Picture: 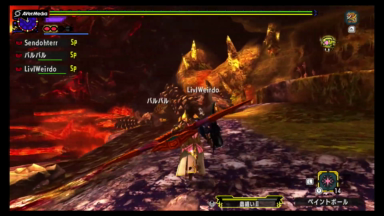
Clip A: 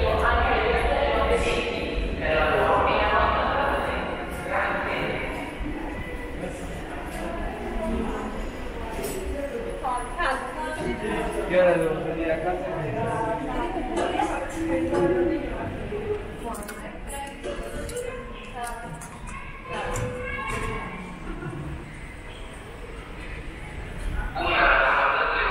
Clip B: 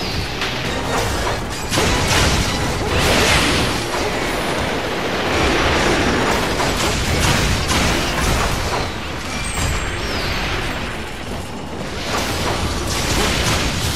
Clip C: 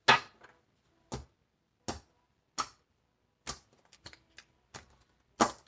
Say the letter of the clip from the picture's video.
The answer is B